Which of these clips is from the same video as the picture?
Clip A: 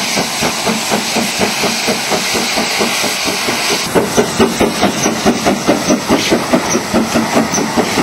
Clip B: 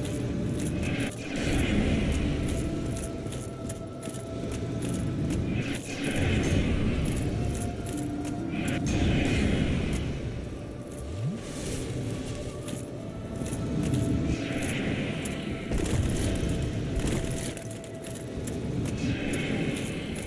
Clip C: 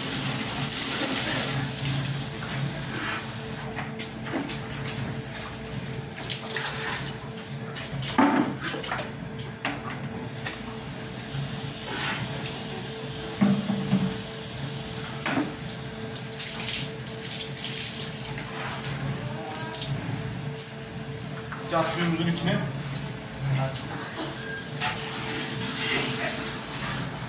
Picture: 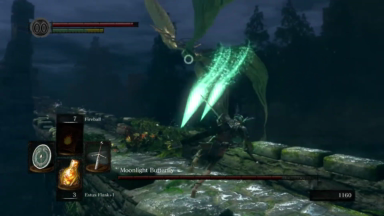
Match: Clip B